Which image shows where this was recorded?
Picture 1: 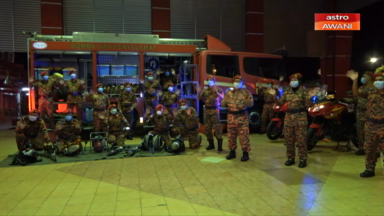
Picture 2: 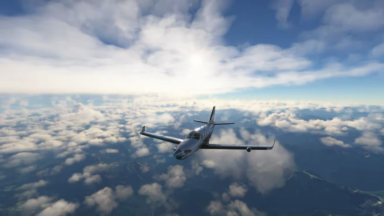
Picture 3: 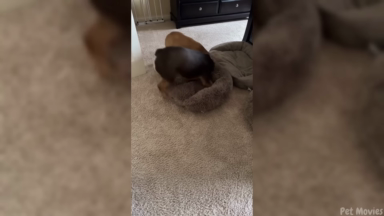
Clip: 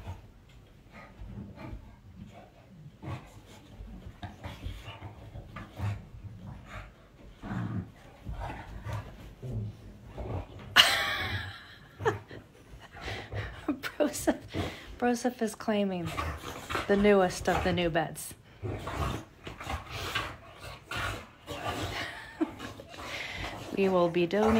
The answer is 3